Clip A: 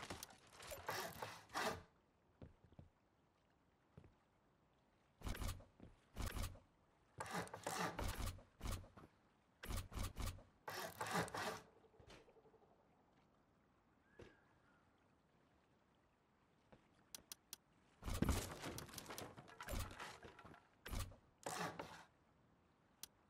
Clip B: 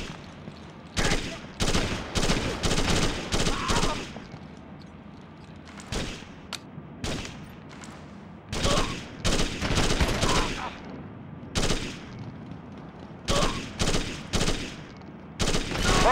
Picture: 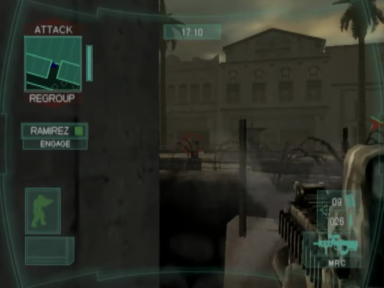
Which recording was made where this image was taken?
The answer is B